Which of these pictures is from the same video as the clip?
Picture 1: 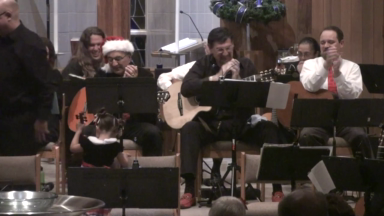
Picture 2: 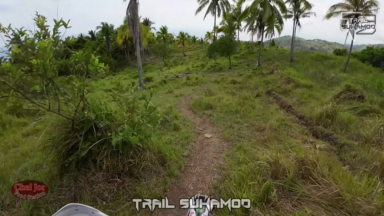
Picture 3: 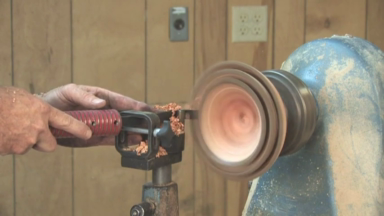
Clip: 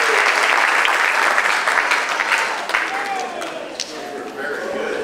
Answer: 1